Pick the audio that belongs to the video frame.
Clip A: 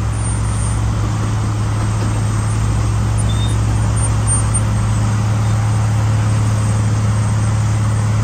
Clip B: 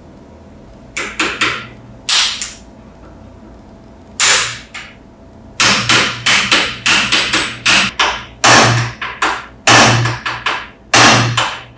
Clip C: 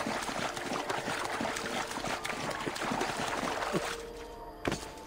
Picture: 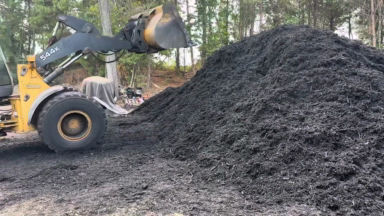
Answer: A